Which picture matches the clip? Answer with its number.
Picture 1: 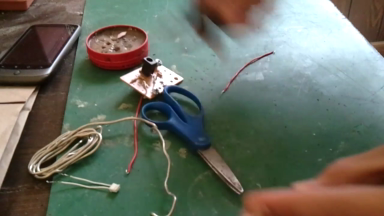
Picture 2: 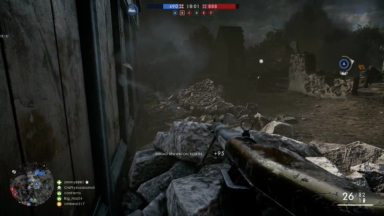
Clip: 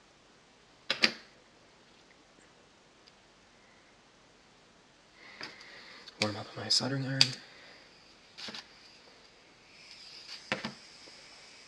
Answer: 1